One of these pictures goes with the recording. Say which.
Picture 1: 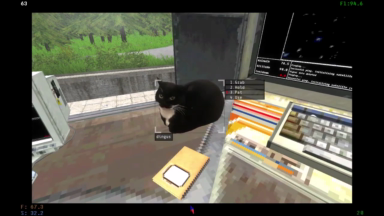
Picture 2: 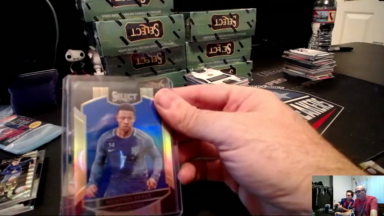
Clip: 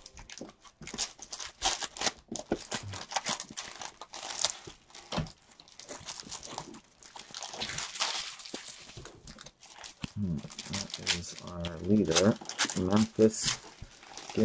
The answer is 2